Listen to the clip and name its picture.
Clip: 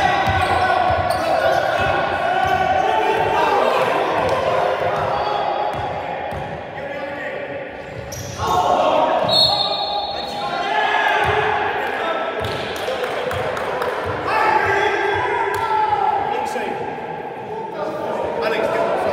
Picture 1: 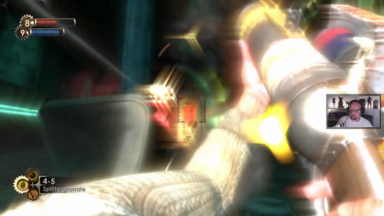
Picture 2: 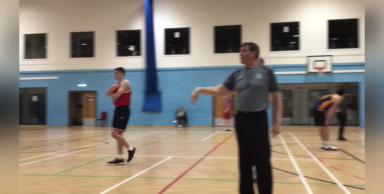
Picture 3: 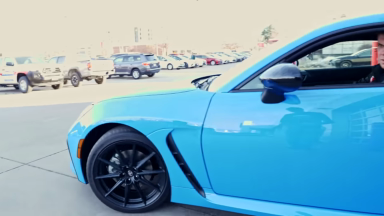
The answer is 2